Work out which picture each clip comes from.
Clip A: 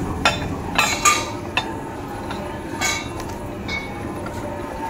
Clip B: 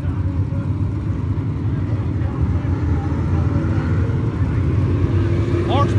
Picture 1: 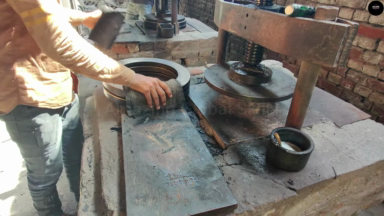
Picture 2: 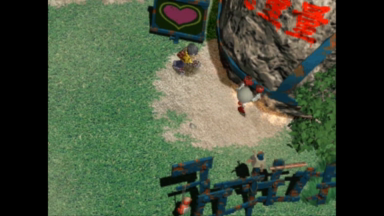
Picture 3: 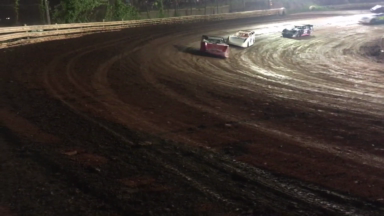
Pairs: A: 1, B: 3